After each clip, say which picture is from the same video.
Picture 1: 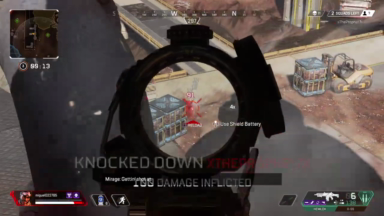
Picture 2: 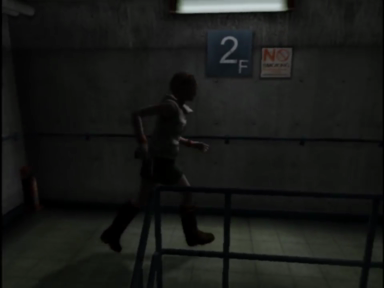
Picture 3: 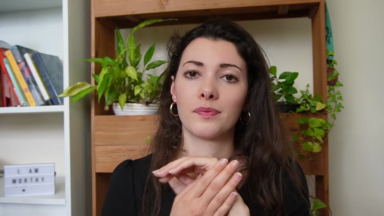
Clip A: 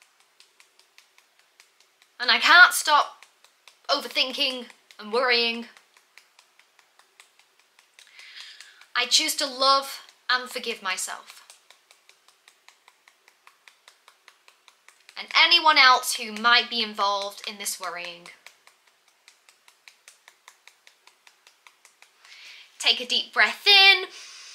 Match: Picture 3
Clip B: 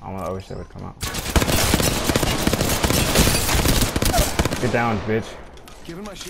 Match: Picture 1